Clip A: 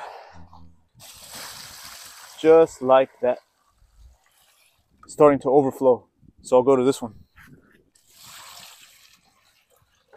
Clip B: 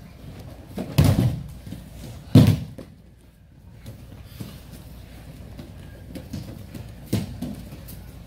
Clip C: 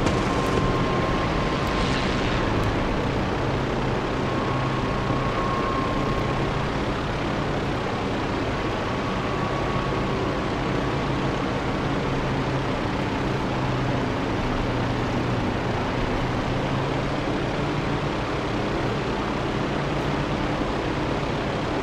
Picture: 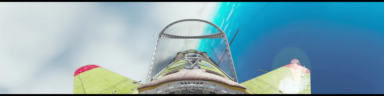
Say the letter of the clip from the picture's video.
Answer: C